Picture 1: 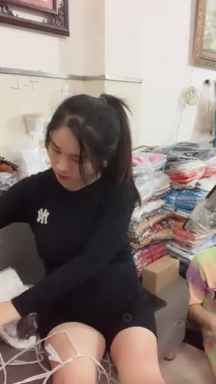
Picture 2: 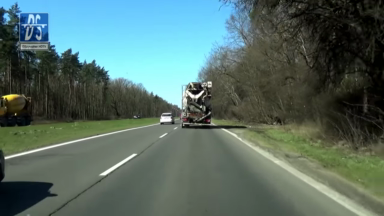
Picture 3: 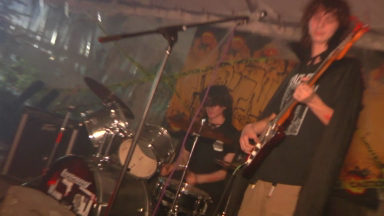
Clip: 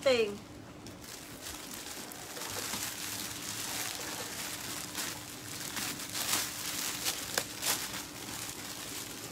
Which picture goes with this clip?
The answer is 1